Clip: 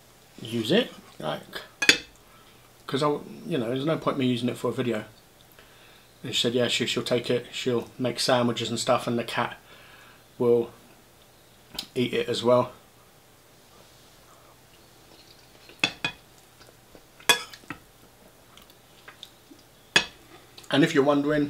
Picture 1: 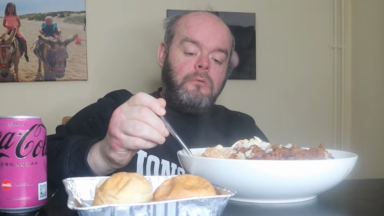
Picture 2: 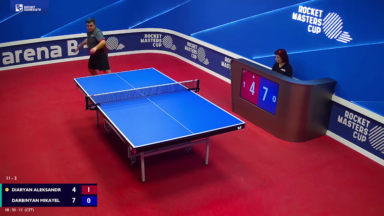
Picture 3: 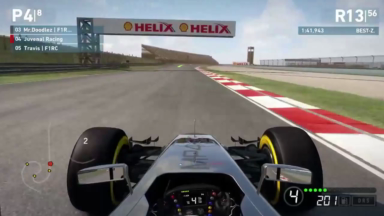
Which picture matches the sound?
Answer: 1